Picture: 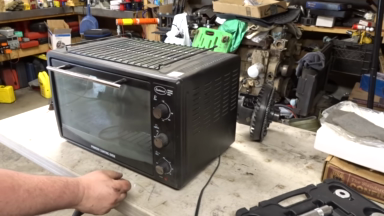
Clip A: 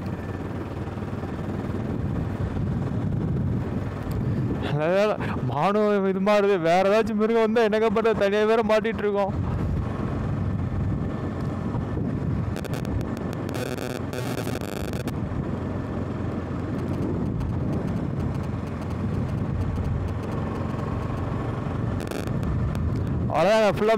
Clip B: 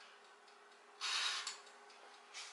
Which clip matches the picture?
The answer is B